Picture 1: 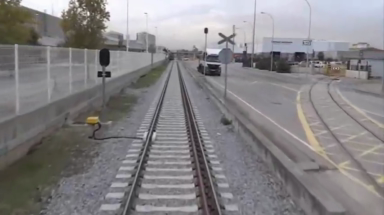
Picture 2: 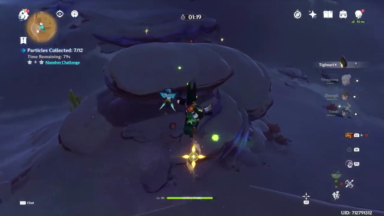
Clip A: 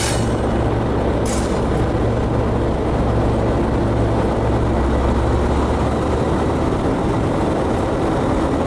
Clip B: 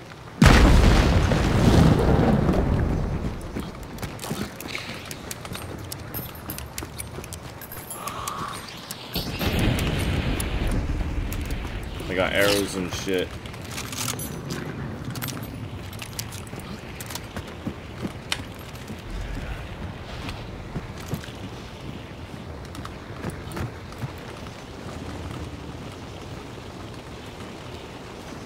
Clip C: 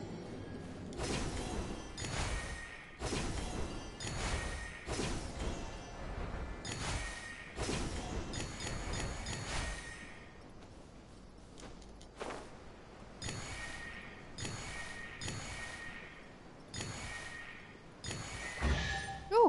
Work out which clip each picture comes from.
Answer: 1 A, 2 C